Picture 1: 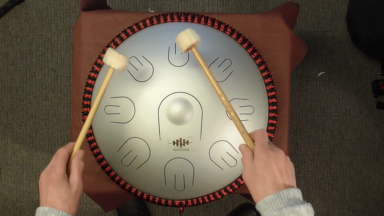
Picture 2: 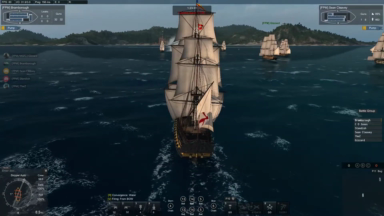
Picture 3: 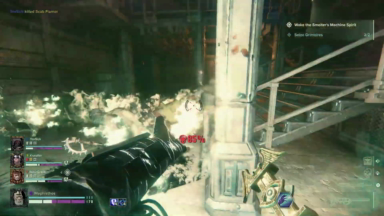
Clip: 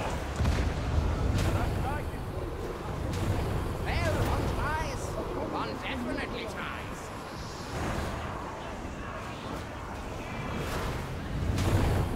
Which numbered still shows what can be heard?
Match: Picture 3